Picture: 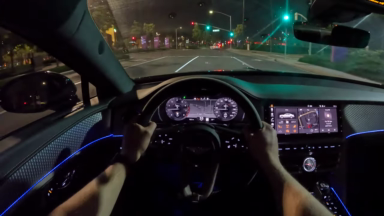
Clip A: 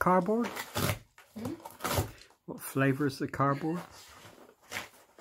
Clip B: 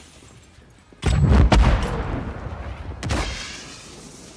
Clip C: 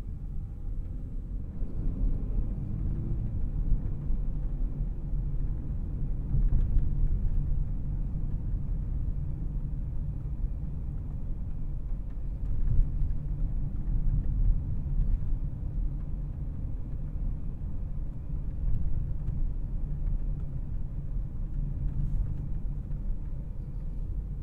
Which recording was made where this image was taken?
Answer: C